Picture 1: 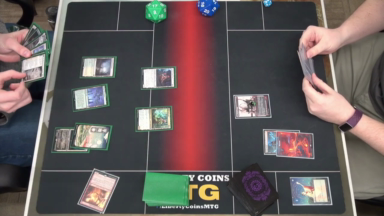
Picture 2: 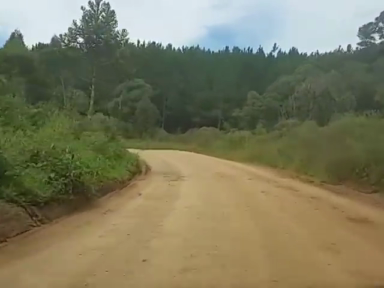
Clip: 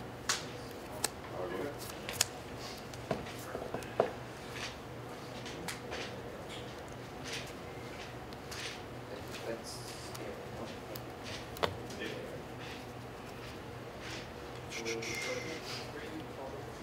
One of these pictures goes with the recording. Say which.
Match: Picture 1